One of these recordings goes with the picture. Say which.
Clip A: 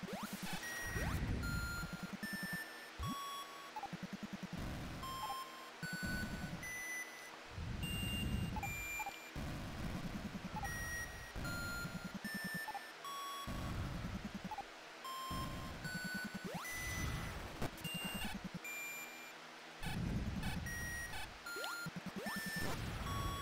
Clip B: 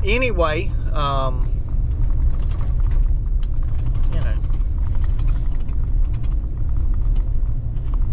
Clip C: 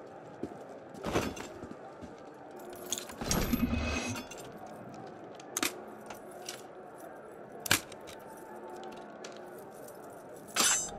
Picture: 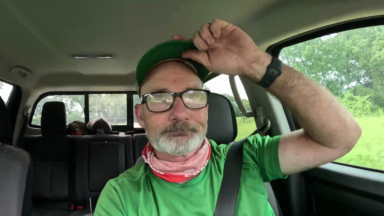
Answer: B